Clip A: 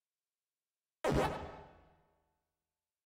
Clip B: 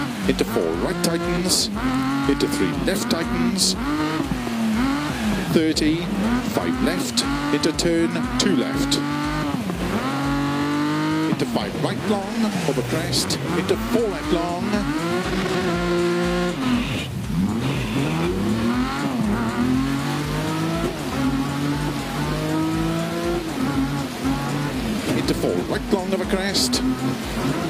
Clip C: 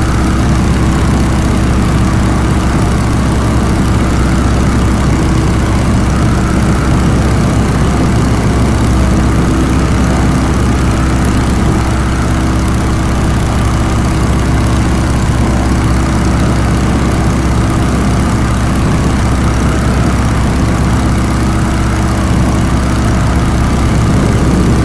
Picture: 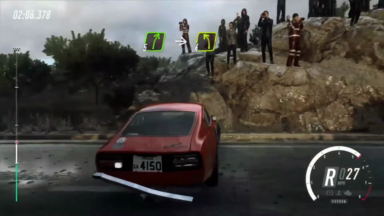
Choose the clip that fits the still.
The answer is B